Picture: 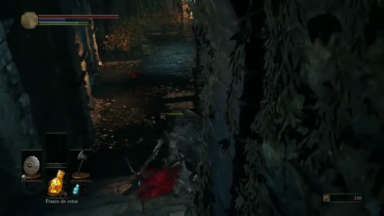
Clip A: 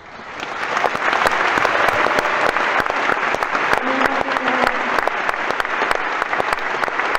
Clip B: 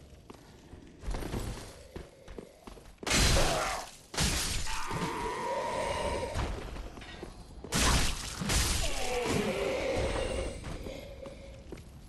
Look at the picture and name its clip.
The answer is B